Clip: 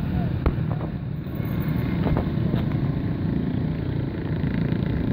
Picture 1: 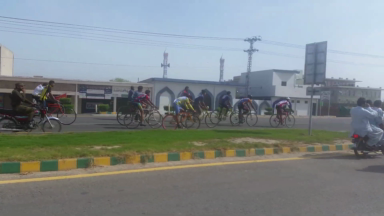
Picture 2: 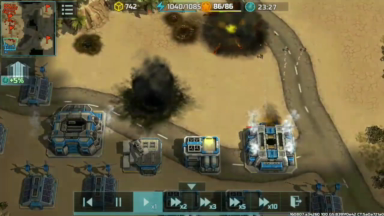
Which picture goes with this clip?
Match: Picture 1